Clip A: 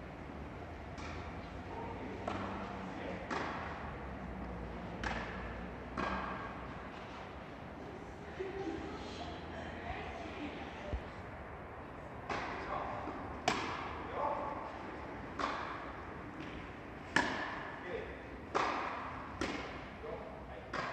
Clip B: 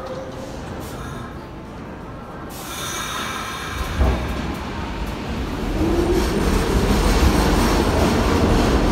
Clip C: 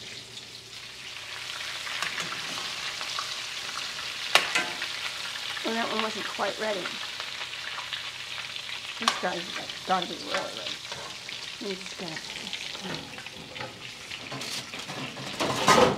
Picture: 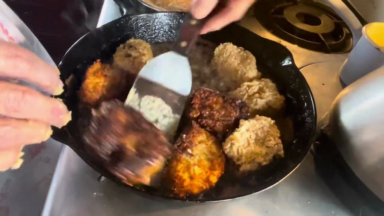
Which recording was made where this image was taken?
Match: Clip C